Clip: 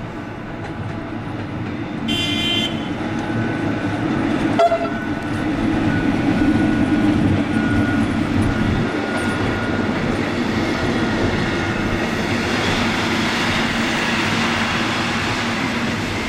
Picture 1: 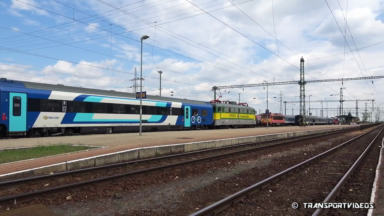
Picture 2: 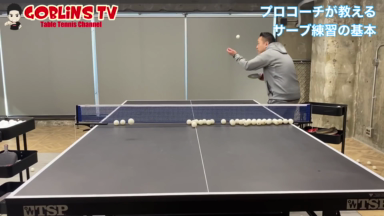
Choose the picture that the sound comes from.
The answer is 1